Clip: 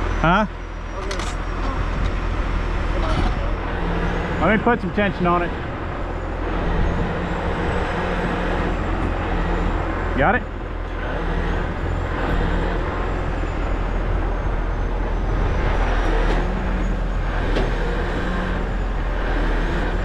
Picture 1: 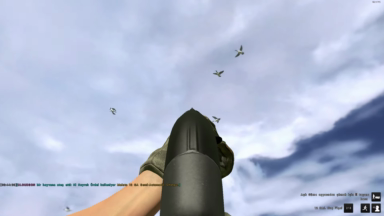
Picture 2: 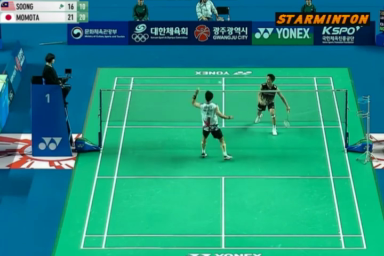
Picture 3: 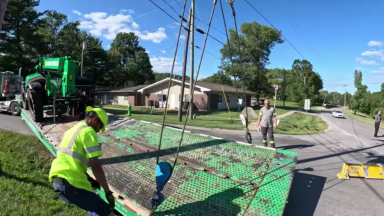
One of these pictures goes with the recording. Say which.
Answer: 3